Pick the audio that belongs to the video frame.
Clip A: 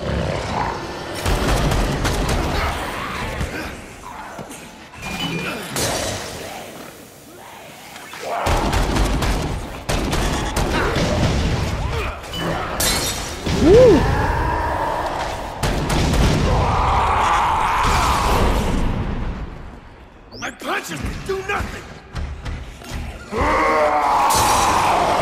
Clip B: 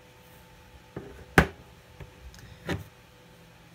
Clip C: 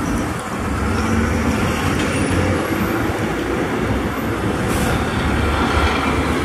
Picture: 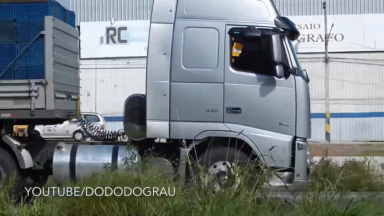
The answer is C